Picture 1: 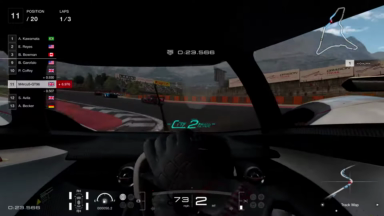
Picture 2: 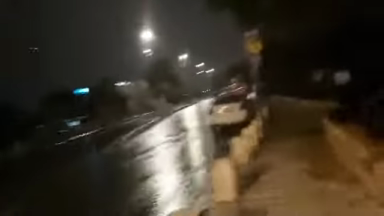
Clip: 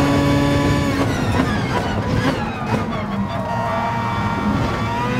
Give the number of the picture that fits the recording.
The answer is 1